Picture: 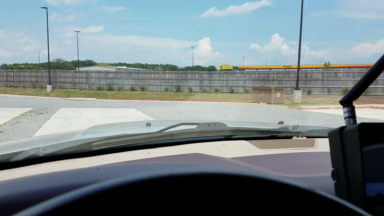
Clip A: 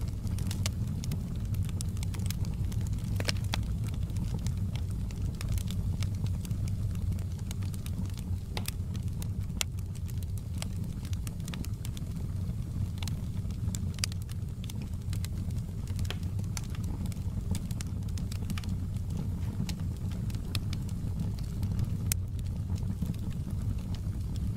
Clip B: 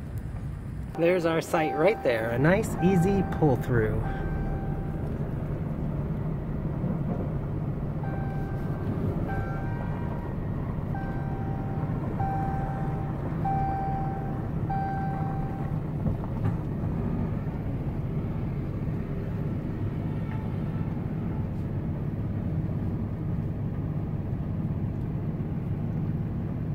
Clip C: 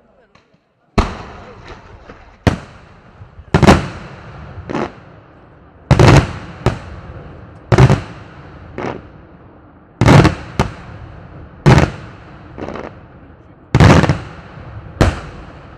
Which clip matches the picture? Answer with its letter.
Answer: B